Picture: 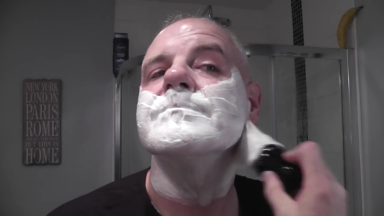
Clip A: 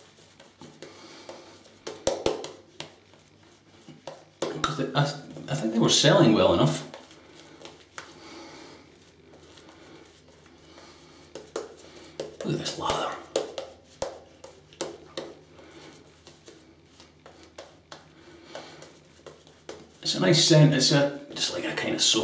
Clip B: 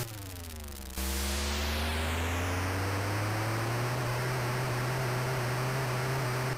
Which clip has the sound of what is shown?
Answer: A